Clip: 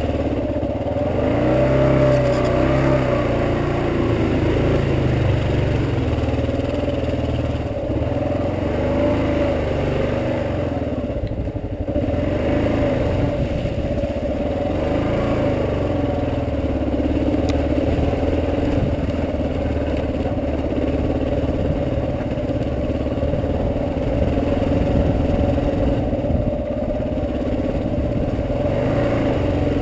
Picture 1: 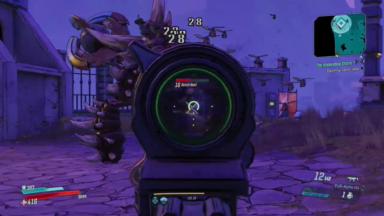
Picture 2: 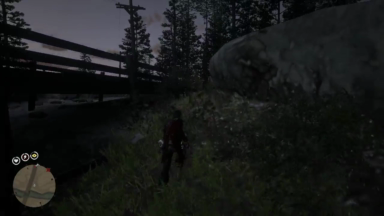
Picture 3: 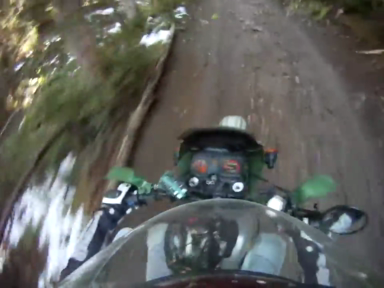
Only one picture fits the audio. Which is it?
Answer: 3